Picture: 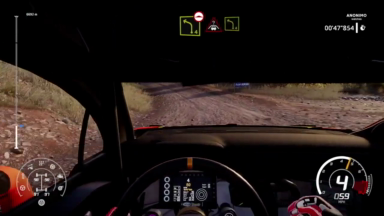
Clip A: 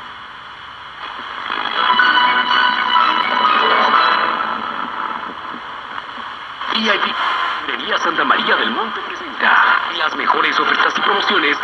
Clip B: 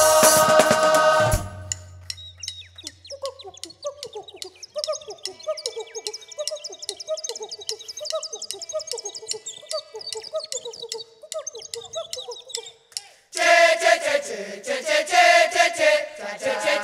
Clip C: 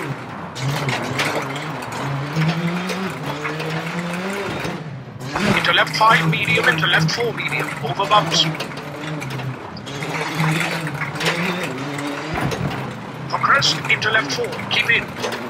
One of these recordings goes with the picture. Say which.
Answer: C